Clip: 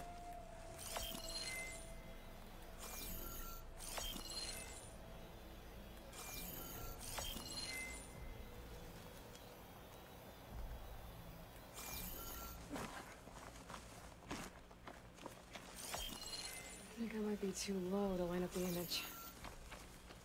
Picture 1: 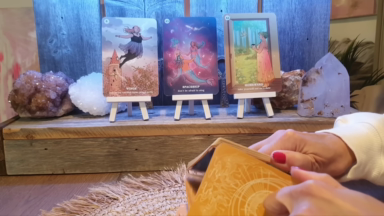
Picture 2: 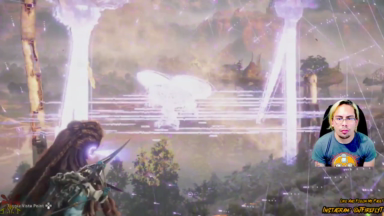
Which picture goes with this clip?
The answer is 2